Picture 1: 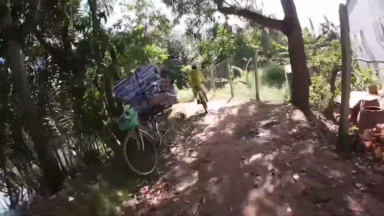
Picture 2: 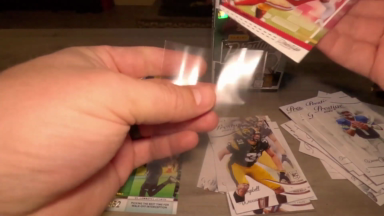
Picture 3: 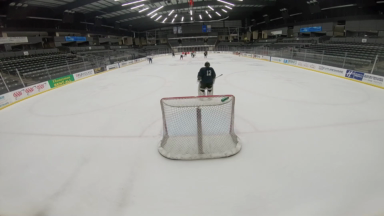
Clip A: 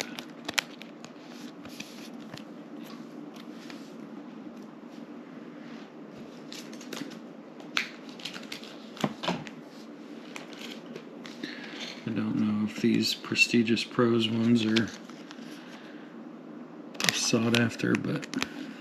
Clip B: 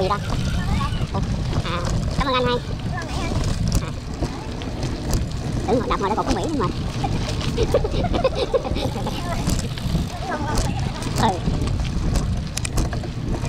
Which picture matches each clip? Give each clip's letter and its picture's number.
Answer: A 2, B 1